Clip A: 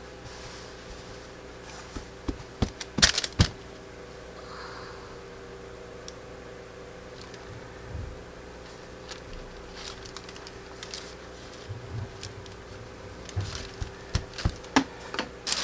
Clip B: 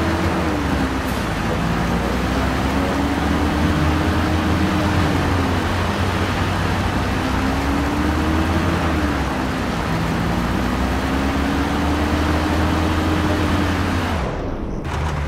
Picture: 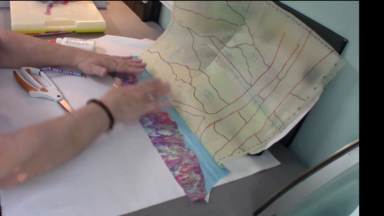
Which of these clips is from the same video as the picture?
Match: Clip A